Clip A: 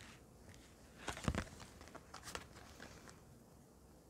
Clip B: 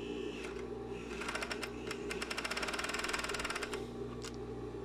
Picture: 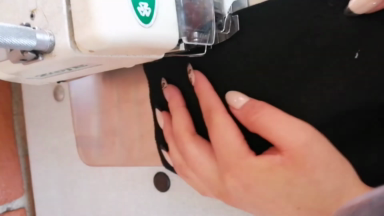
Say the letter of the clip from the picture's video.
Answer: B